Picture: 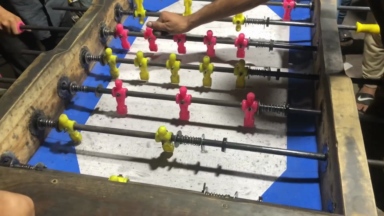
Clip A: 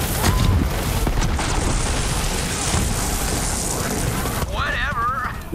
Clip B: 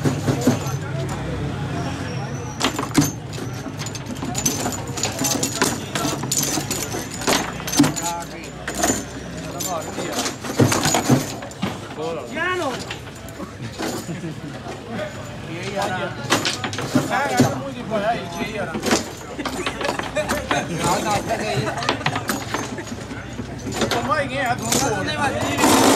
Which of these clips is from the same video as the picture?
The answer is B